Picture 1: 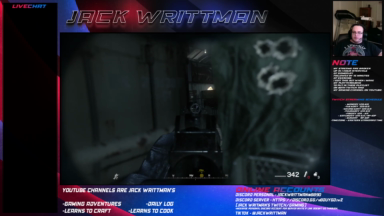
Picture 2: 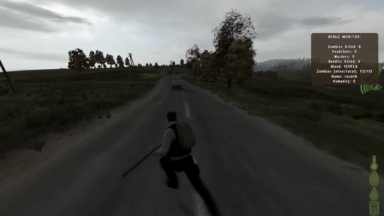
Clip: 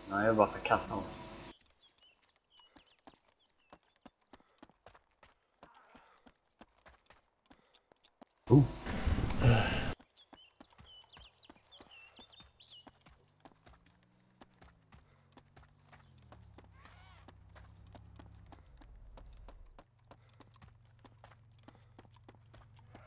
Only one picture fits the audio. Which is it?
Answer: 2